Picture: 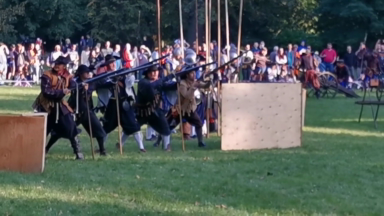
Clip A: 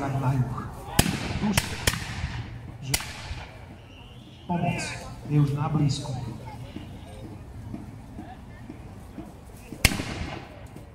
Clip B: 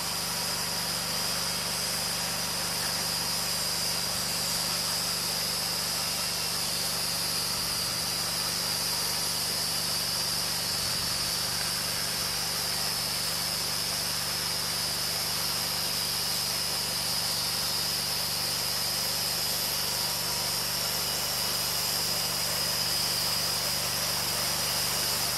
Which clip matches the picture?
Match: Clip A